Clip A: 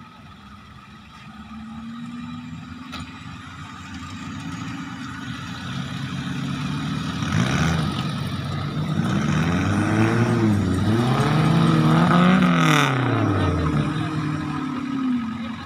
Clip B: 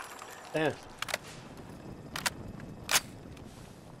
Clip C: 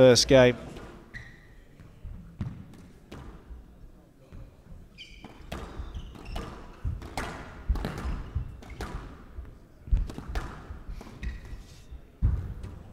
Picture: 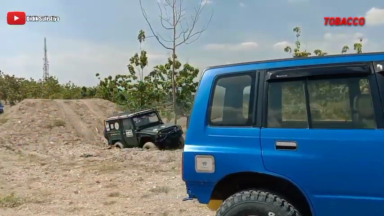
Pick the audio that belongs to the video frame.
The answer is A